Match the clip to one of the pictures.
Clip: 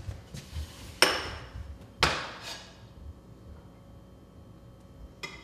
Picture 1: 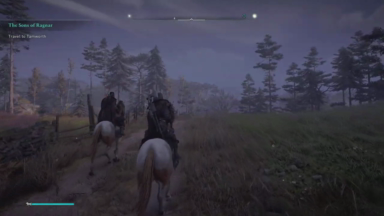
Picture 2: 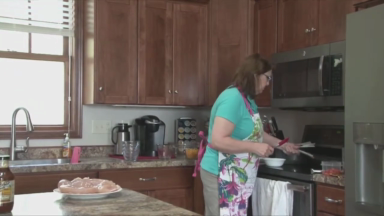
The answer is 2